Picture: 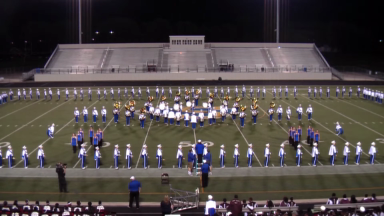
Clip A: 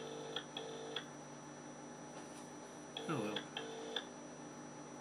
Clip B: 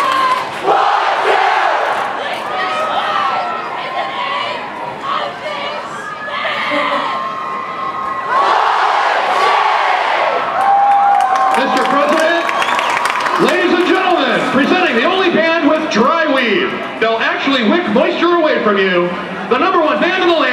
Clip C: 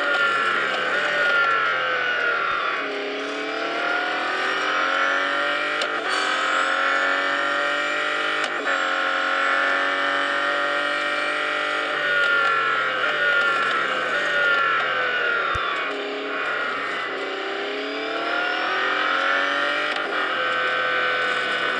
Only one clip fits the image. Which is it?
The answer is B